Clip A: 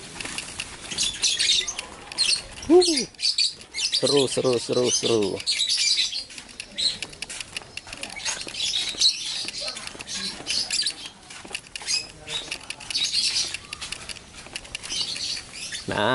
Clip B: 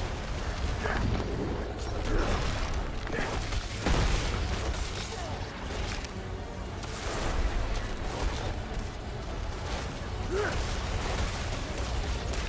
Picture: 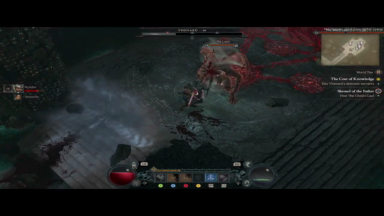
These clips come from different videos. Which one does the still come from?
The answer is B